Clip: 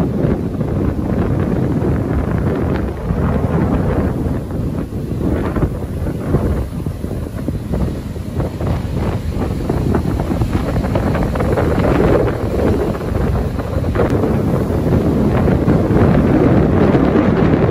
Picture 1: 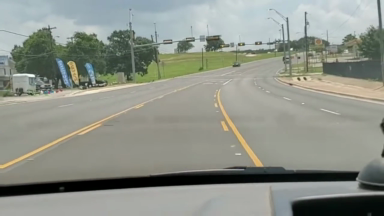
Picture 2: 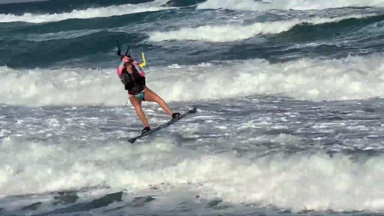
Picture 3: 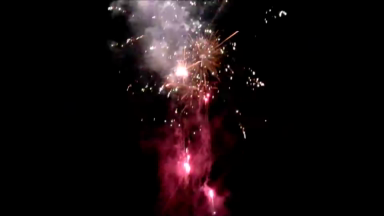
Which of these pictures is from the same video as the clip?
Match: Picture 2